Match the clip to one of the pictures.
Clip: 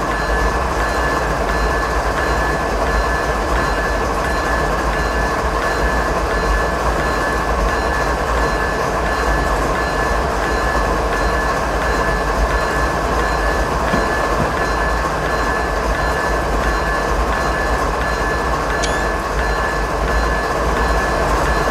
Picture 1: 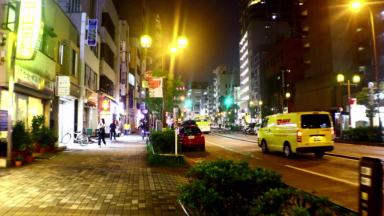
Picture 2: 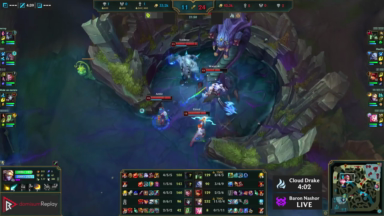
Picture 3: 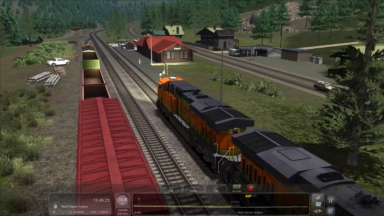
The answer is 3